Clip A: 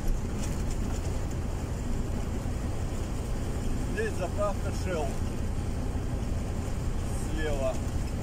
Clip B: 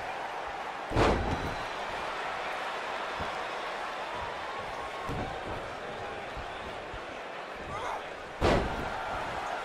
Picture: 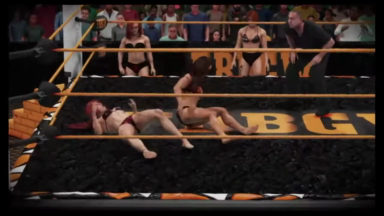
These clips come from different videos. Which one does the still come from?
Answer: B